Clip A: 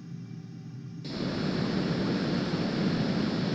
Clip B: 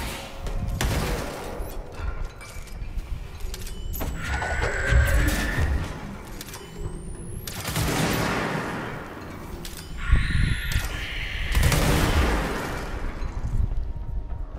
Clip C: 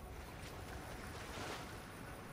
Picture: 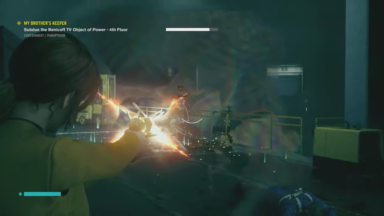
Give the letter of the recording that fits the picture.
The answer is B